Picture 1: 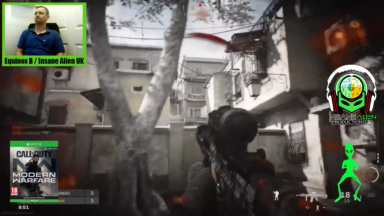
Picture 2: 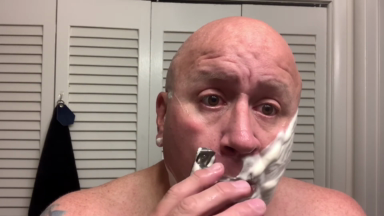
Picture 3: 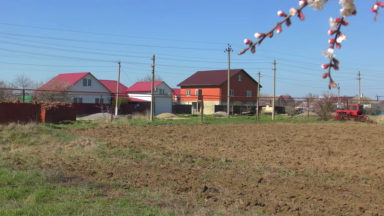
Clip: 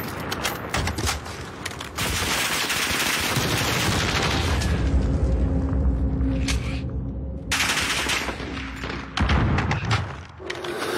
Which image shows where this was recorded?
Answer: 1